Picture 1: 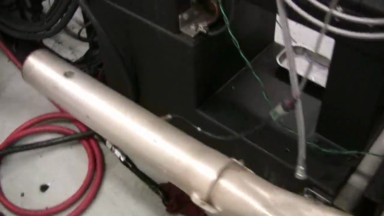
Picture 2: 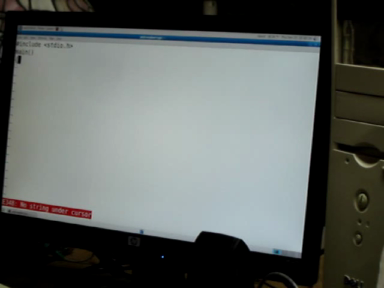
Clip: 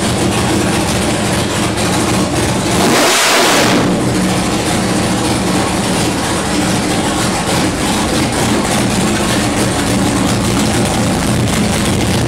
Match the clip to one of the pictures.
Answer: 1